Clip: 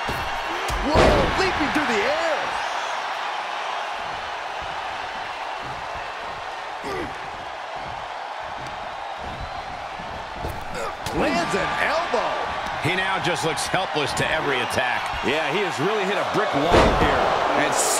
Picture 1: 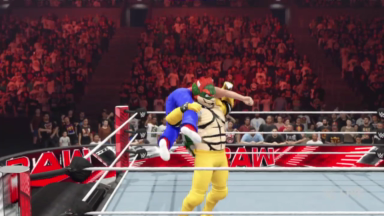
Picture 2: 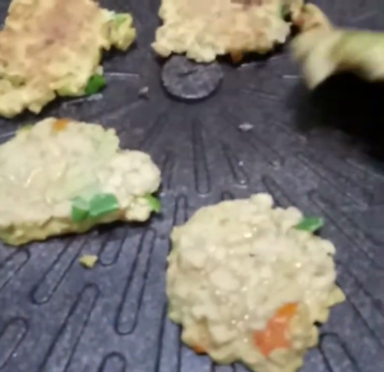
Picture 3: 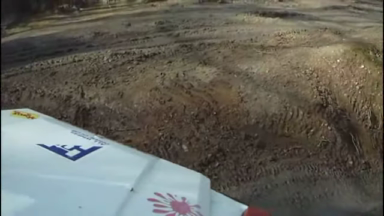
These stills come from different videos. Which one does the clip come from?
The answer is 1